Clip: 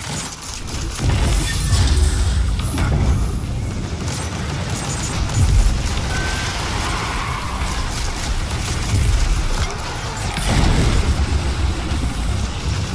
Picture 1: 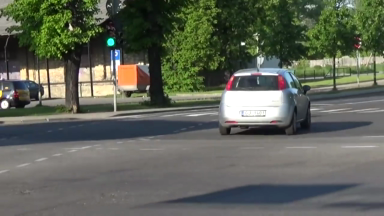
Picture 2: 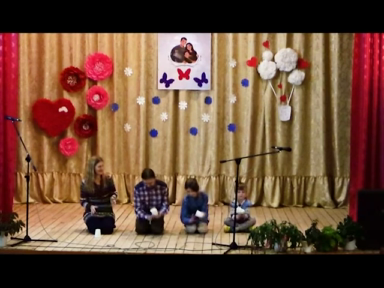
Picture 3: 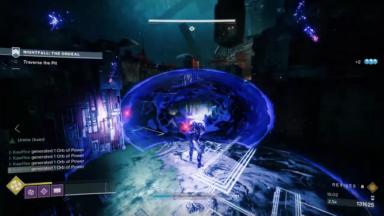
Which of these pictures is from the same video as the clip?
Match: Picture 3